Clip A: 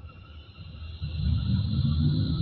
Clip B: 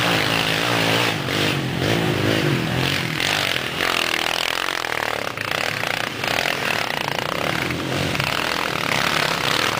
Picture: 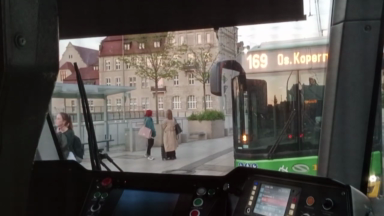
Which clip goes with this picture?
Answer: A